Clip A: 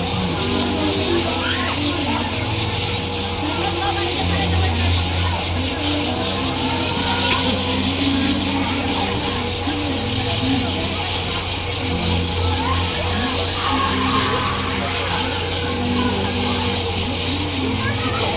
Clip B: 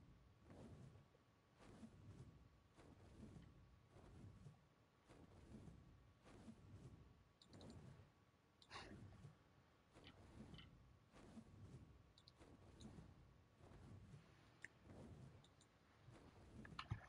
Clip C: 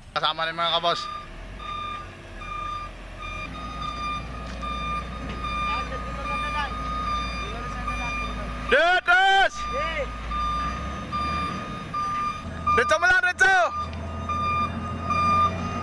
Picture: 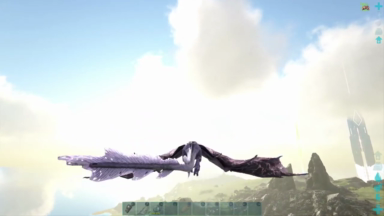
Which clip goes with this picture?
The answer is B